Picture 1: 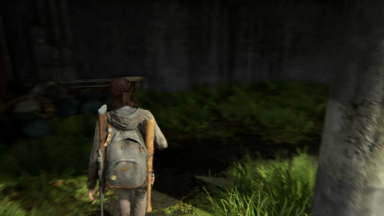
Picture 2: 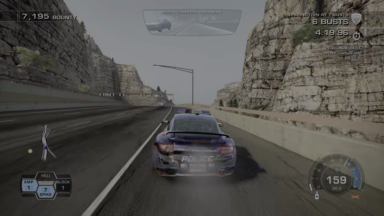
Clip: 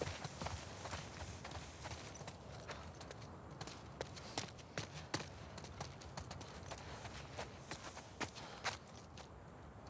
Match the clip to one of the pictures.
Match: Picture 1